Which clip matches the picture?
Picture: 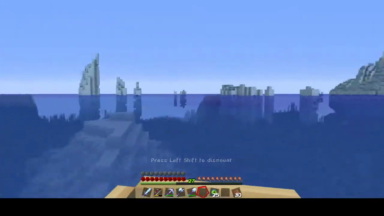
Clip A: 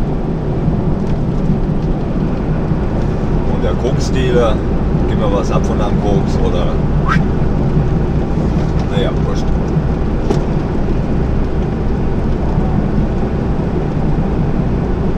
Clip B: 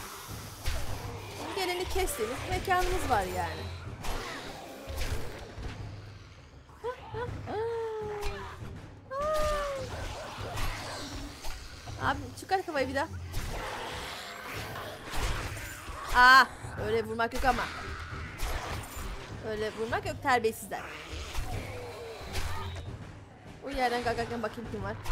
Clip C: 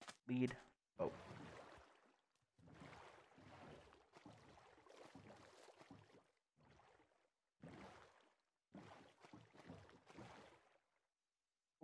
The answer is C